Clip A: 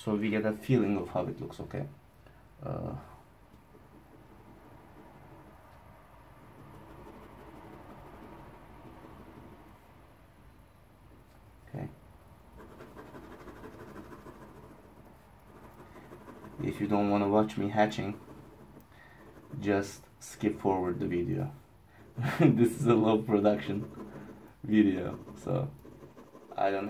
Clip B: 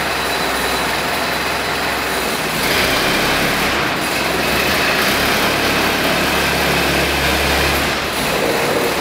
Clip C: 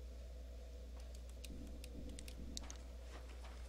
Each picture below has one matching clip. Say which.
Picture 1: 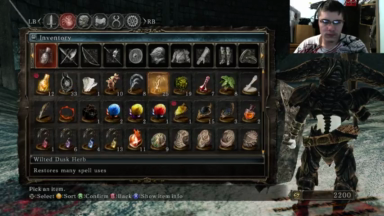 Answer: C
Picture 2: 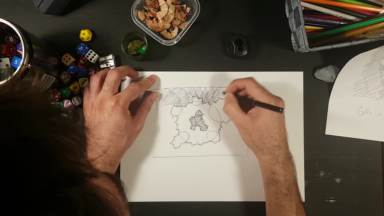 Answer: A